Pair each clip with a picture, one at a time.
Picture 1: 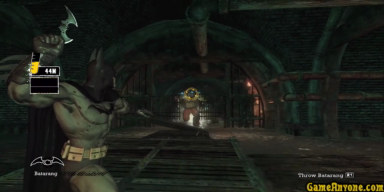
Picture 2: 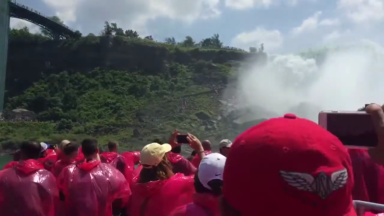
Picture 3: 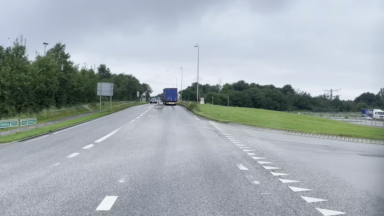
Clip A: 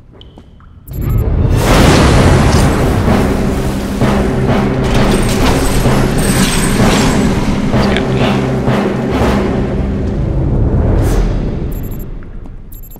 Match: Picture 1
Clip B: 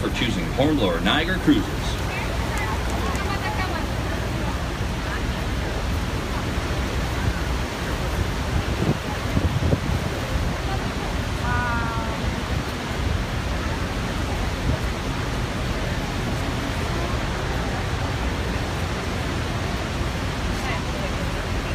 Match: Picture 2